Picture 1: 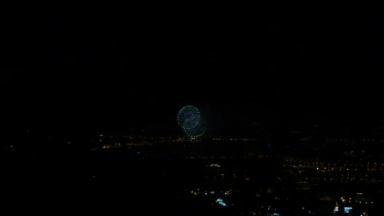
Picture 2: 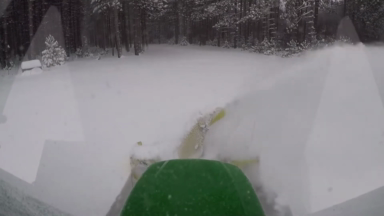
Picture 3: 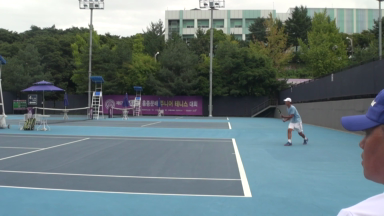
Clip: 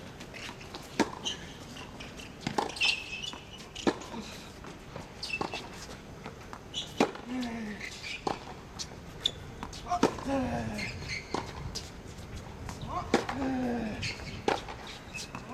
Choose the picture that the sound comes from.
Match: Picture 3